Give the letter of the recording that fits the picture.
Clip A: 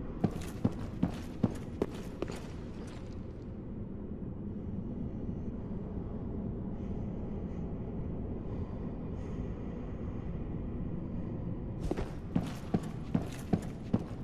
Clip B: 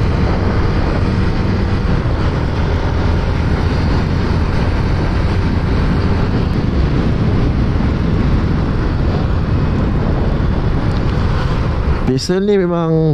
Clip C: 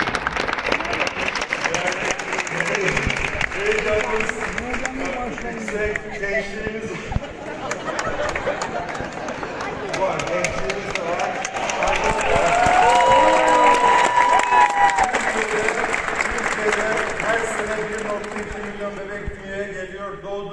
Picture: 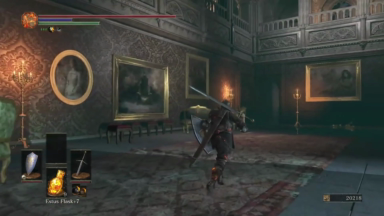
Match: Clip A